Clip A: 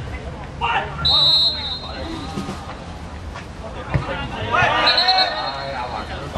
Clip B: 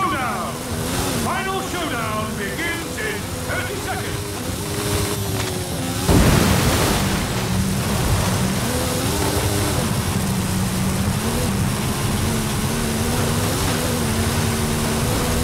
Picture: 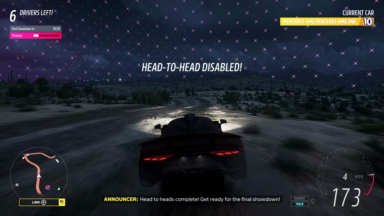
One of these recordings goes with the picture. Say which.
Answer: B